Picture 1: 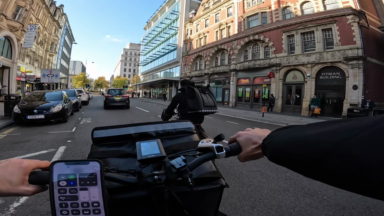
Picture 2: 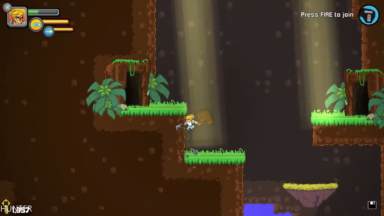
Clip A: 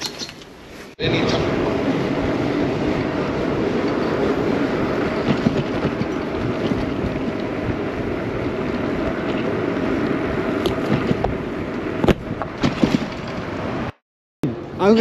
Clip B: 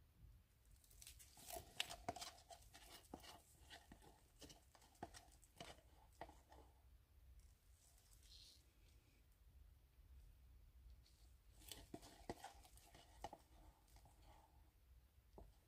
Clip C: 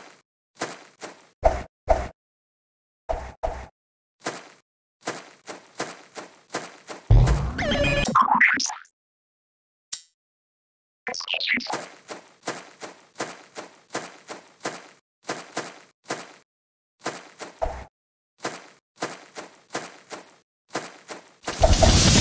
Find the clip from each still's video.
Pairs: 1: A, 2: C